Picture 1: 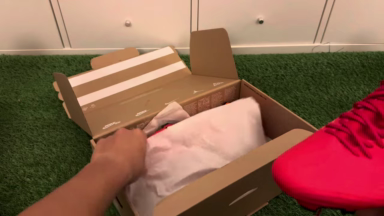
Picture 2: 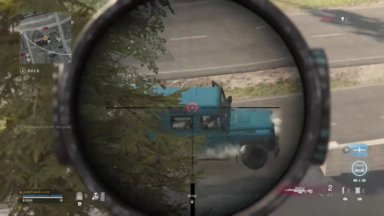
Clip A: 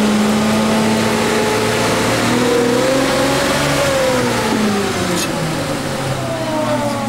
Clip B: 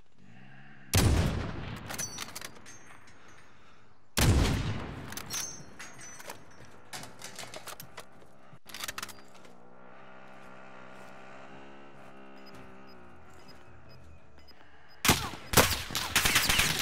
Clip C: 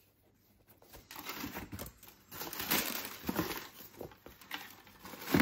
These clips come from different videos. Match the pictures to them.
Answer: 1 C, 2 B